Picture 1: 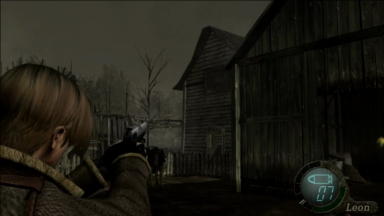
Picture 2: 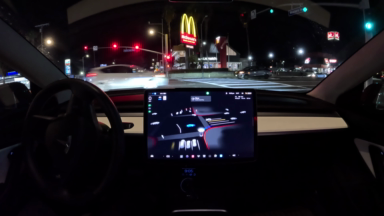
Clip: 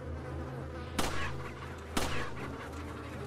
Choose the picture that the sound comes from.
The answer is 1